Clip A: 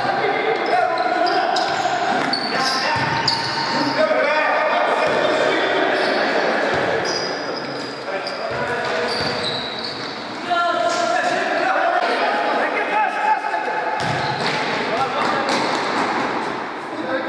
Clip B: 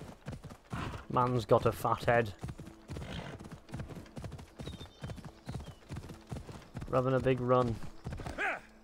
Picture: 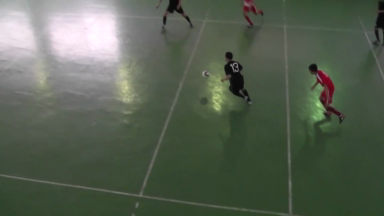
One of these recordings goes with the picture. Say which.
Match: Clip A